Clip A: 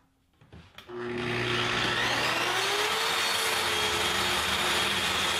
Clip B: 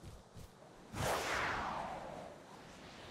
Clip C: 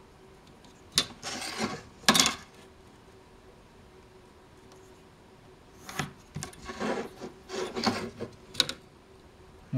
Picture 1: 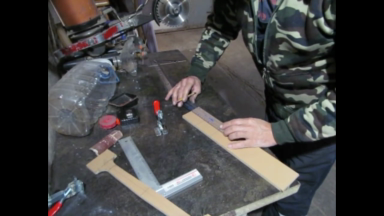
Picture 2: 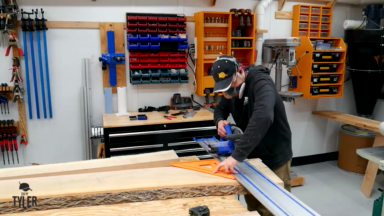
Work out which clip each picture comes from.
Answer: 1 C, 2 A